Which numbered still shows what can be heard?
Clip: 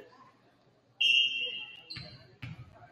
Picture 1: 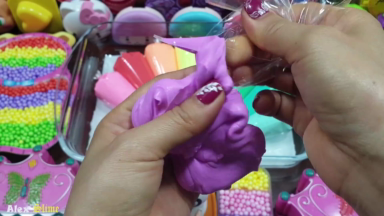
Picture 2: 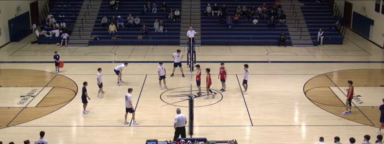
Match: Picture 2